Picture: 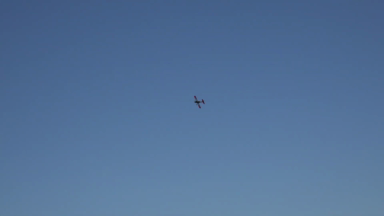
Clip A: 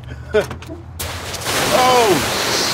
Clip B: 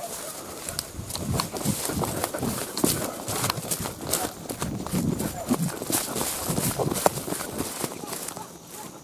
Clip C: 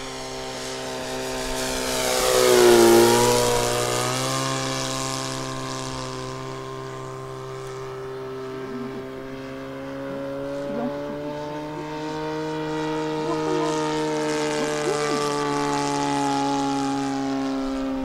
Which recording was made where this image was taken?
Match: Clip C